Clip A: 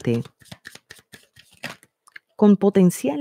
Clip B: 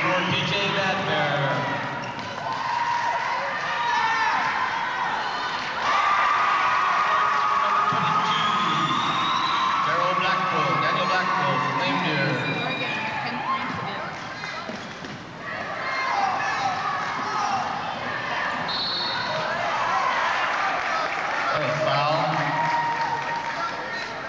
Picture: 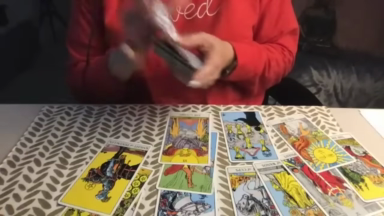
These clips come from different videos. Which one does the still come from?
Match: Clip A